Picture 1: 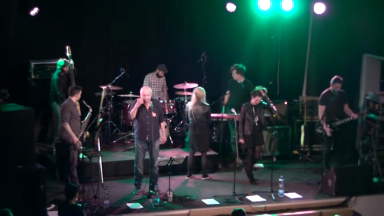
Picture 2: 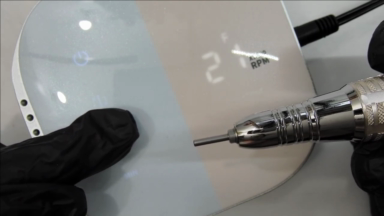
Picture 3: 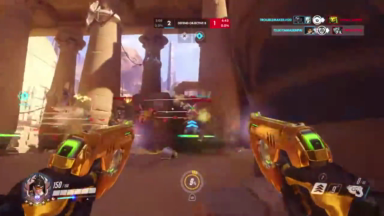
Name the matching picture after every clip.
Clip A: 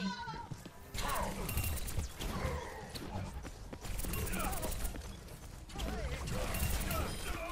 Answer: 3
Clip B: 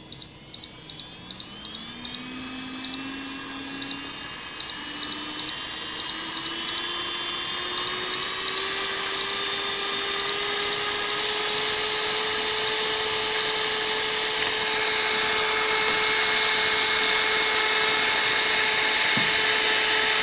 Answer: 2